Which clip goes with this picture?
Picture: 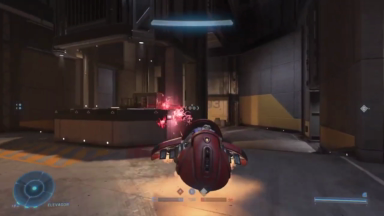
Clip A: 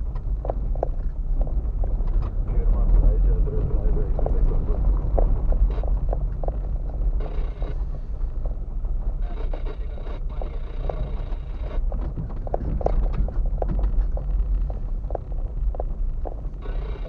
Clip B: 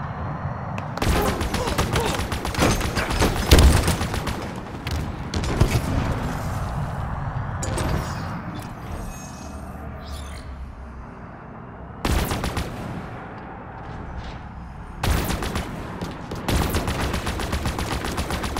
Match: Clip B